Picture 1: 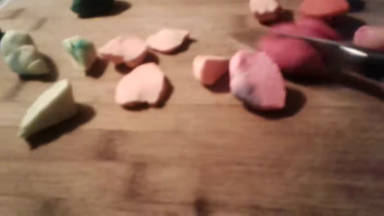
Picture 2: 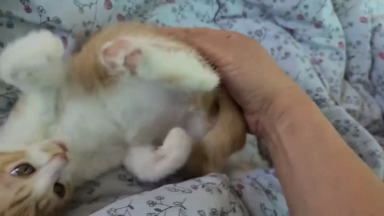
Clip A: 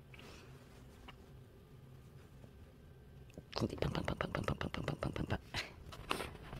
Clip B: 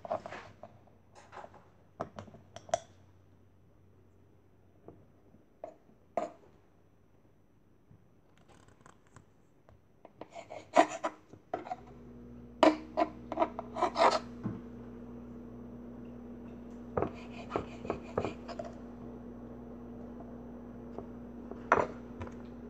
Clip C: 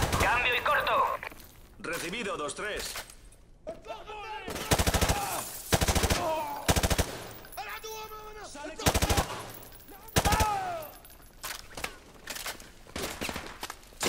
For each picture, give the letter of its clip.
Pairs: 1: B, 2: A